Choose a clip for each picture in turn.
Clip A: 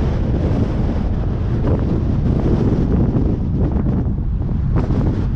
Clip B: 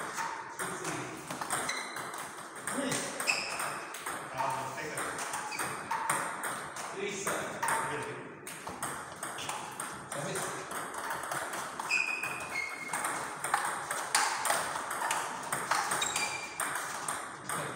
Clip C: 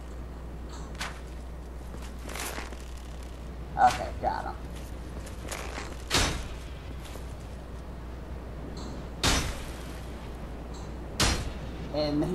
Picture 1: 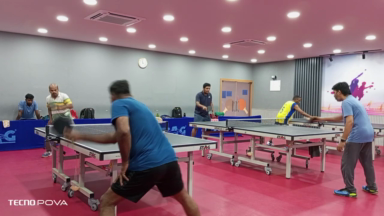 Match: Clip B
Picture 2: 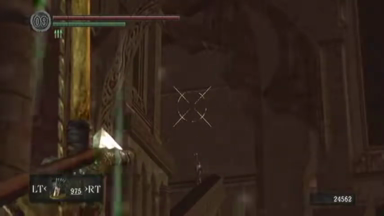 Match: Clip C